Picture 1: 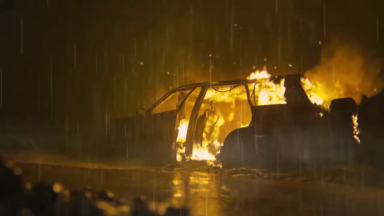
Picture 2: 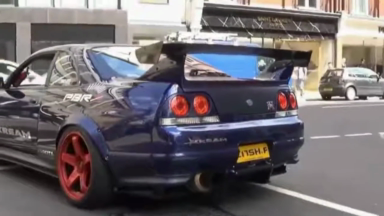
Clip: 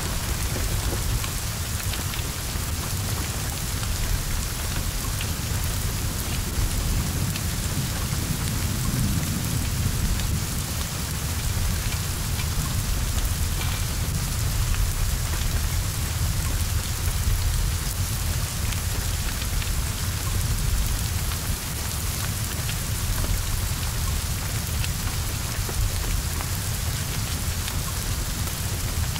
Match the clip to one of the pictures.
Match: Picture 1